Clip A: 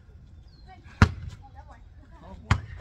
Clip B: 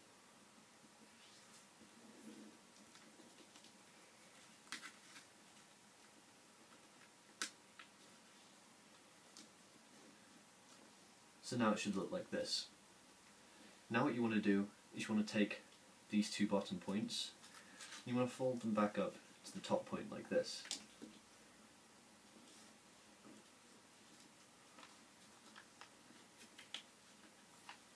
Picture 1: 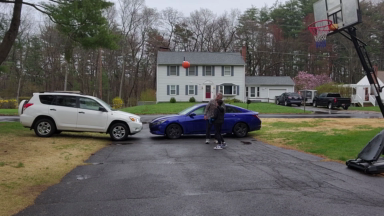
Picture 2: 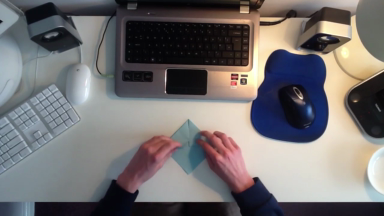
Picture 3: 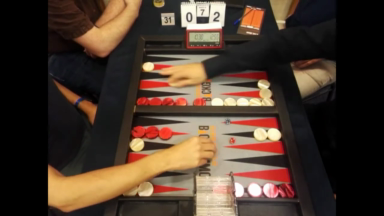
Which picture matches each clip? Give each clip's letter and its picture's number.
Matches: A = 1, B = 2